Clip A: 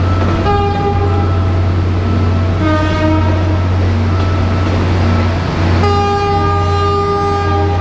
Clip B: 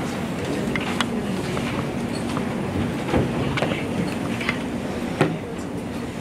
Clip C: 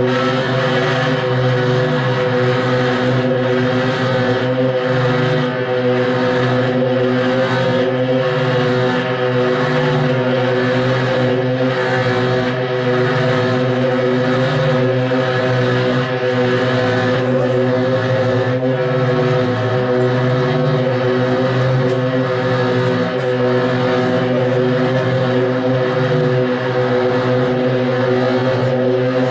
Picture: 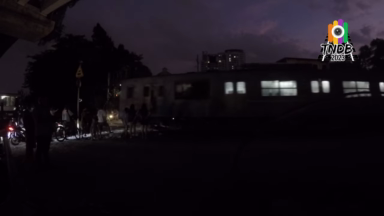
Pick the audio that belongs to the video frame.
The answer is A